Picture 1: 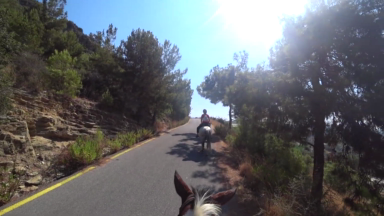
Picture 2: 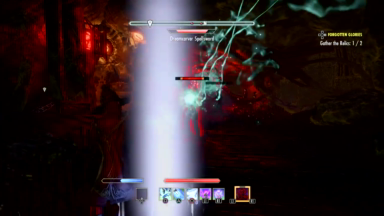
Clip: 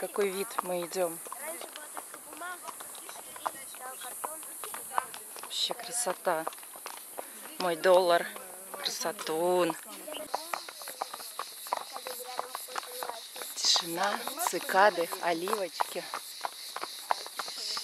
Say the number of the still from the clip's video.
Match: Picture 1